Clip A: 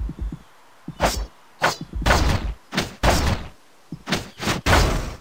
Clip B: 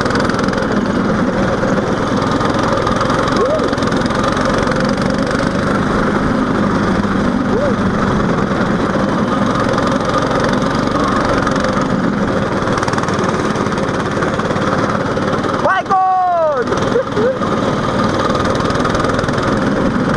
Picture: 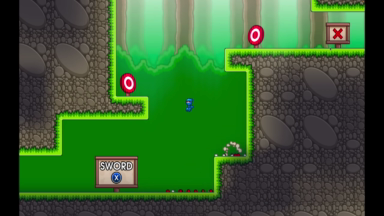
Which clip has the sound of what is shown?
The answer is A